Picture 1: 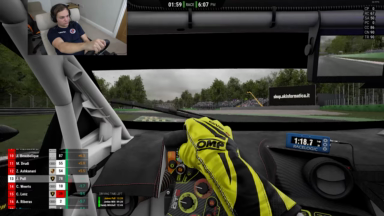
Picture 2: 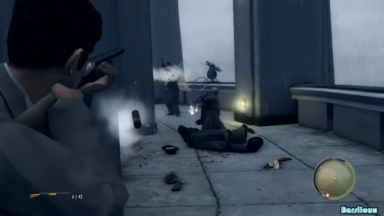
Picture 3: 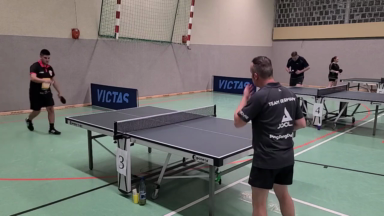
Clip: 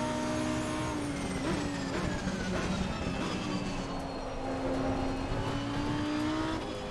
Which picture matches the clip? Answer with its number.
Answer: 1